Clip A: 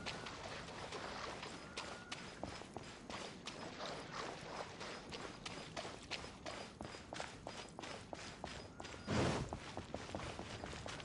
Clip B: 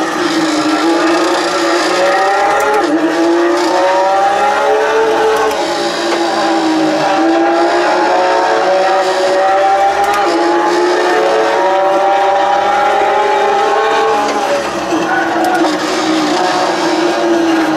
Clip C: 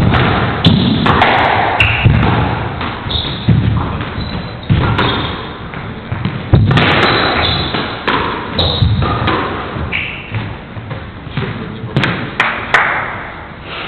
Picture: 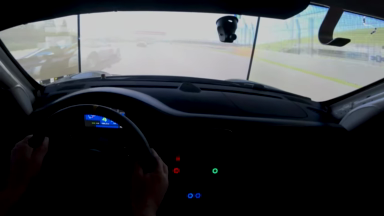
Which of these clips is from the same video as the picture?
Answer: B